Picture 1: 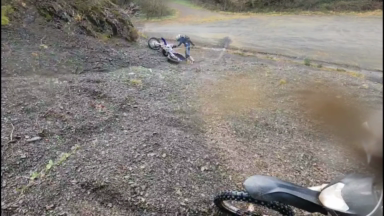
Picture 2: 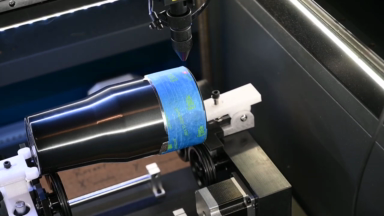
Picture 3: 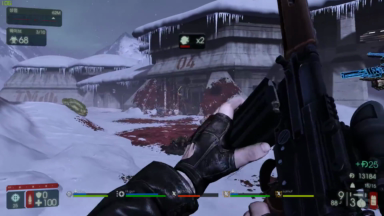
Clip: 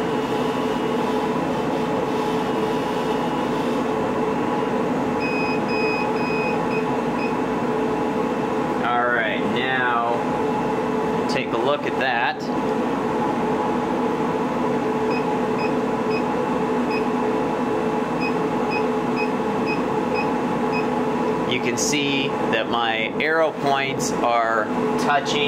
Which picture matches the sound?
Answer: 2